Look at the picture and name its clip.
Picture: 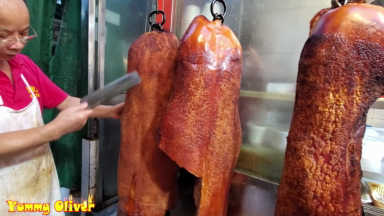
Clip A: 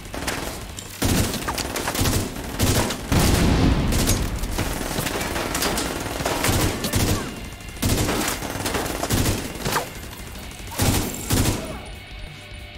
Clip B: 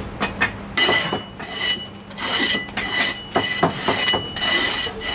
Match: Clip B